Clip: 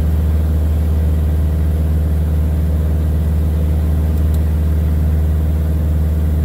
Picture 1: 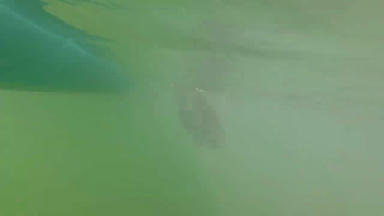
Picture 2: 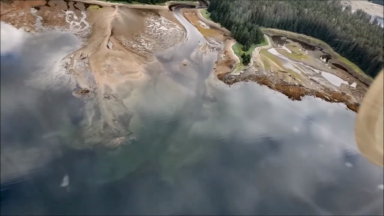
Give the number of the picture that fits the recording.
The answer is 2